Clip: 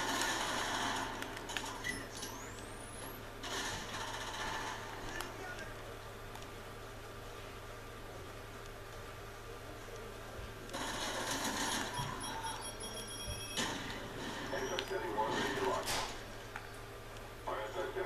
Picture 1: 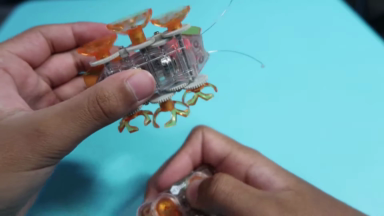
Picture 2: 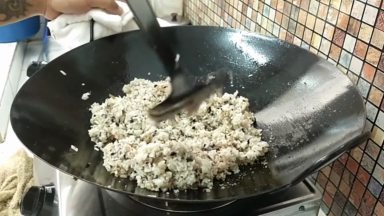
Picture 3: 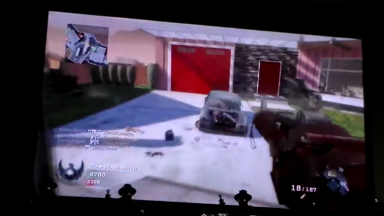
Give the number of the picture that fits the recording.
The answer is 3